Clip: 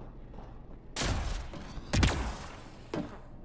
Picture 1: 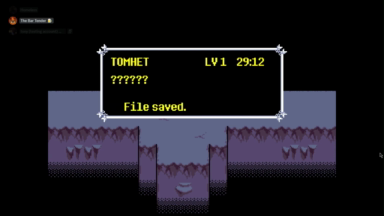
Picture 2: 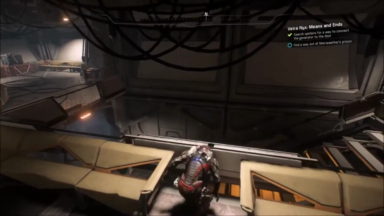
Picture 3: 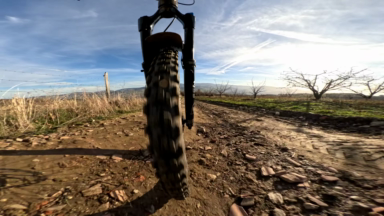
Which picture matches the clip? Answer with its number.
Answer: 2